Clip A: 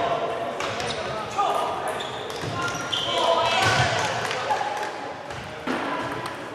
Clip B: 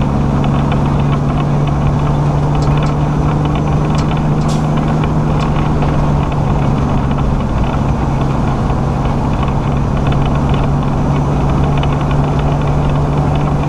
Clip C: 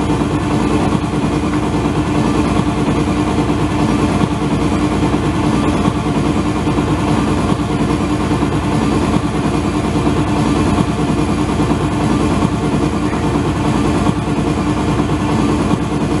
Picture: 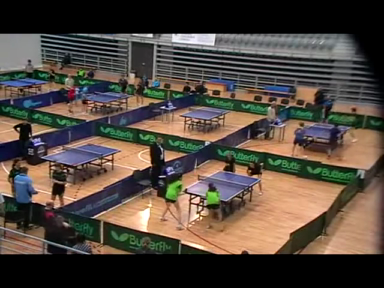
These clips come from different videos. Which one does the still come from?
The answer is A